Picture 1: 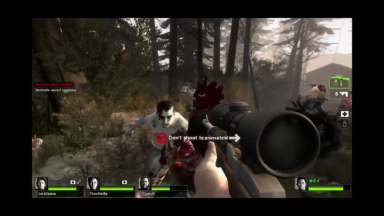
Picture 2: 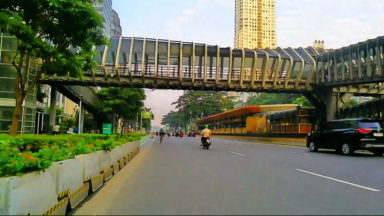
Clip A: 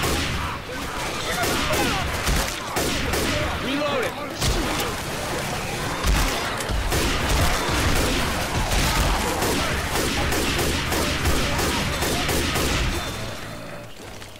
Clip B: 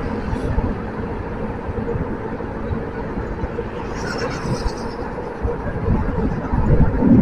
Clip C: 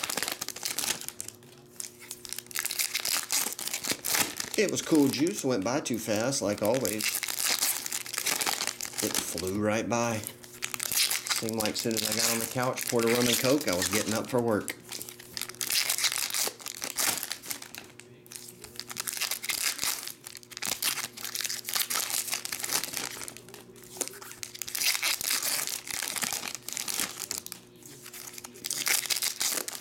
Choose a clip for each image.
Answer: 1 A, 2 B